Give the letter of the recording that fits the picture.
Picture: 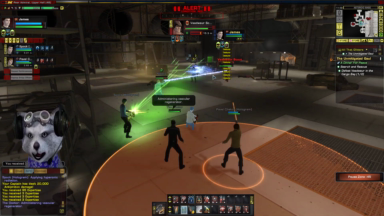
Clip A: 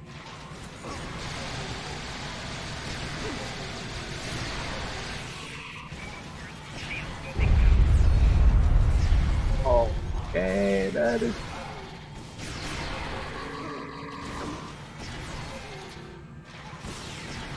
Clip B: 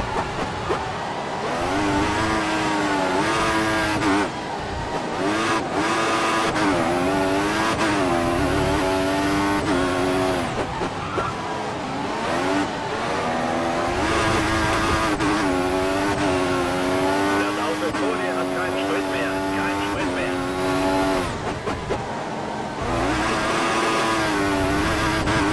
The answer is A